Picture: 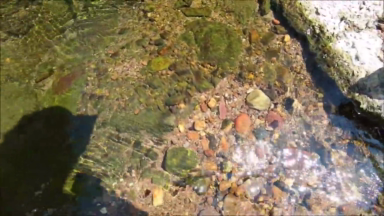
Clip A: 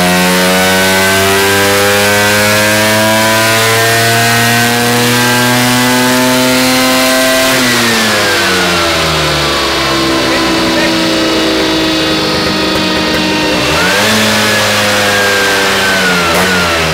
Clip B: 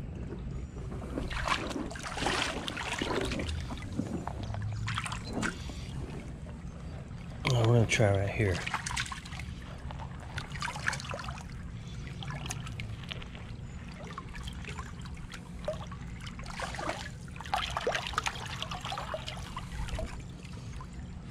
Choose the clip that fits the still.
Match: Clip B